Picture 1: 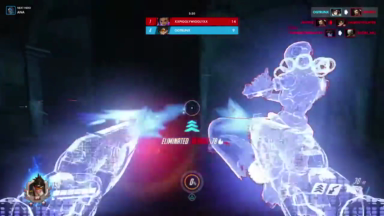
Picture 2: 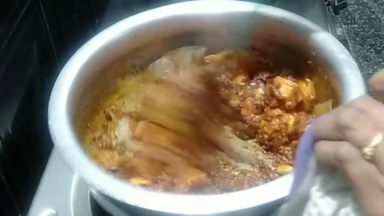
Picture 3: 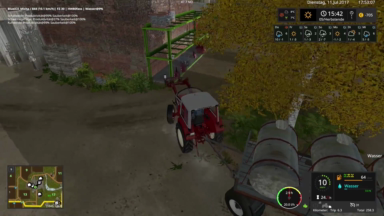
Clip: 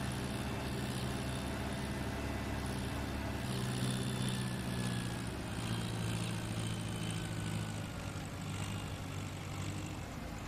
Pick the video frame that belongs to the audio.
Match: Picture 3